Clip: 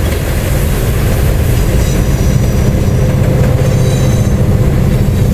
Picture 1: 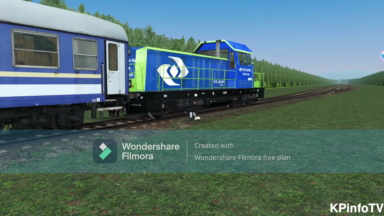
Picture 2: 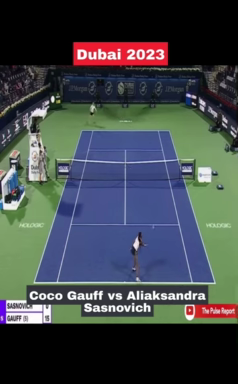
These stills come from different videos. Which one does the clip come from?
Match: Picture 1